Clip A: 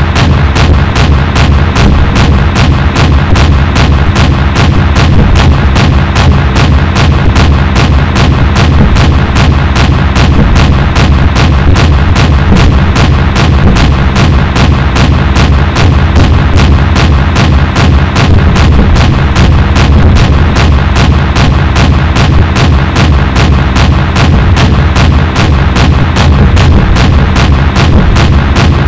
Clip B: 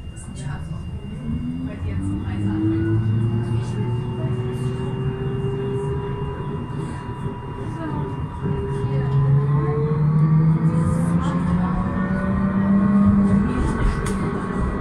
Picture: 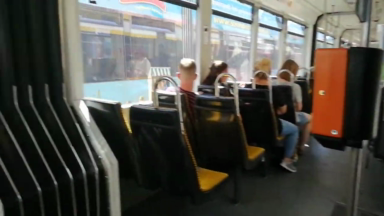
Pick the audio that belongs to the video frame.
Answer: B